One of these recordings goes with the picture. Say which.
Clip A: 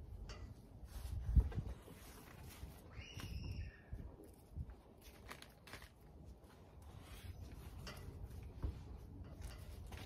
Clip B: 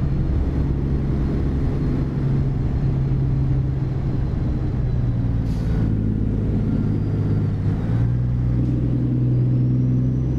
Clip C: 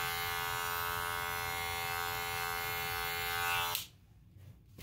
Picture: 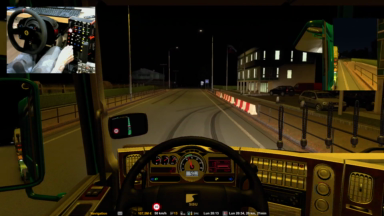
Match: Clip B